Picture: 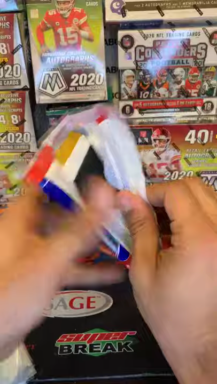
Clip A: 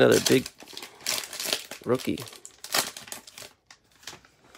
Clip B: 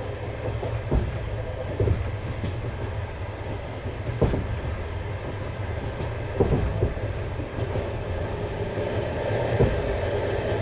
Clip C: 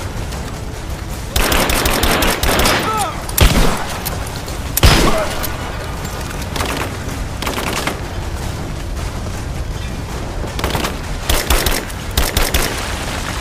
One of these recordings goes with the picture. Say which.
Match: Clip A